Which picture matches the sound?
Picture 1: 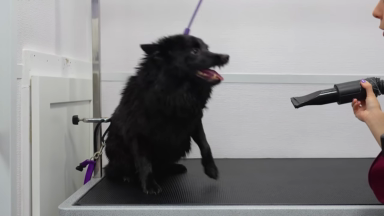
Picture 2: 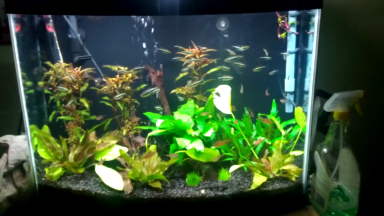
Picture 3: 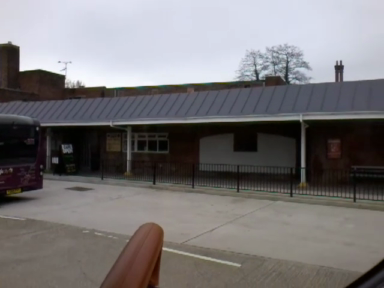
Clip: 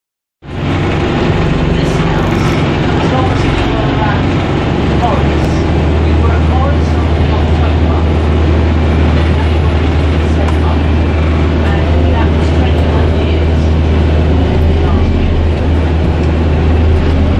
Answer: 3